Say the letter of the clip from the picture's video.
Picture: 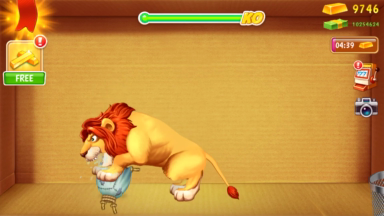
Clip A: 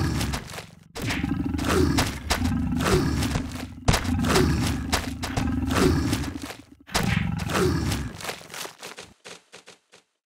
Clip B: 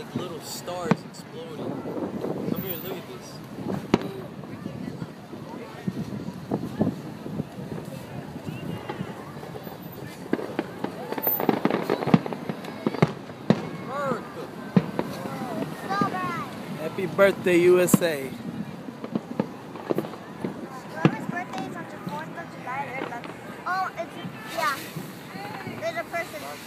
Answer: A